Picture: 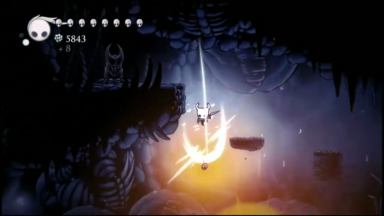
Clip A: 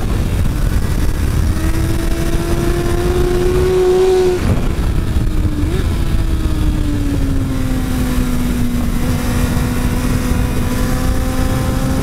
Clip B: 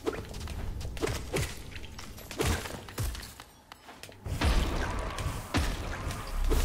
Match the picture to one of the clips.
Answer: B